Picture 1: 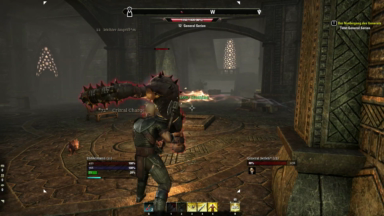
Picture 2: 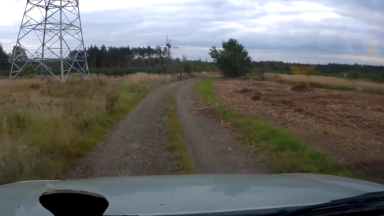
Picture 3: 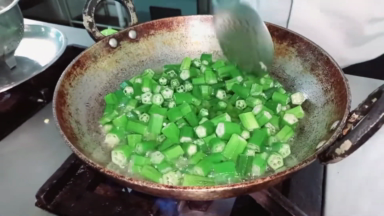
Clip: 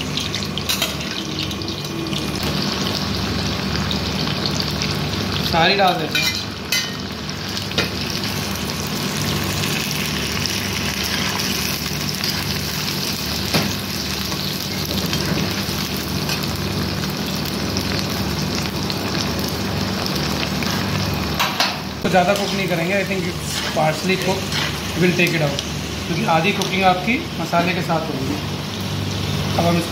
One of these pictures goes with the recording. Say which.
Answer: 3